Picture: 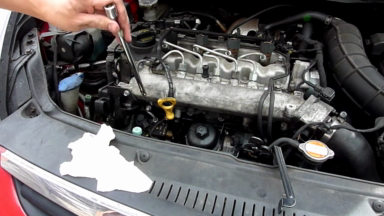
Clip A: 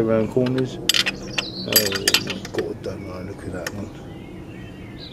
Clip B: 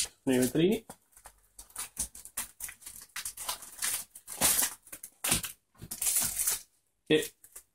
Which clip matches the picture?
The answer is A